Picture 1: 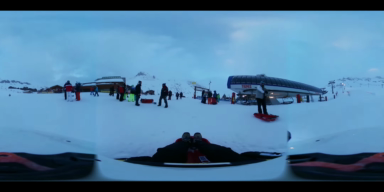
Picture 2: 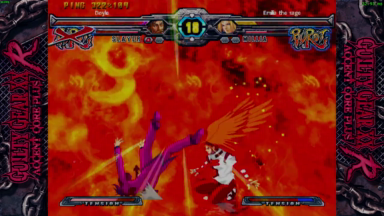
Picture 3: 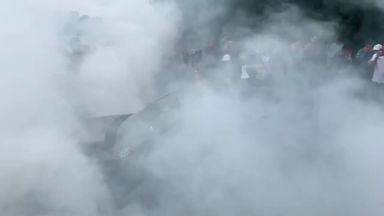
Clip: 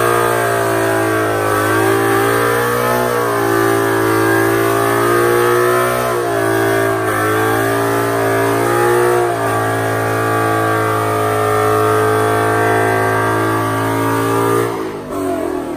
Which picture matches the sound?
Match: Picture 3